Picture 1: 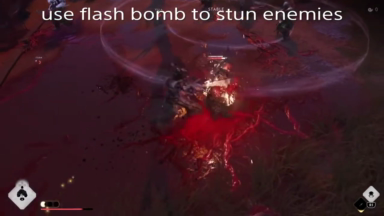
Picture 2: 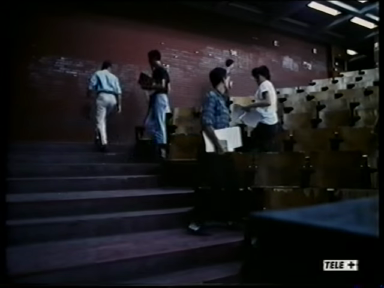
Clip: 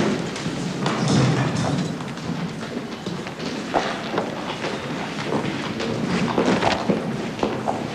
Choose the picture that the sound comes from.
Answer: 2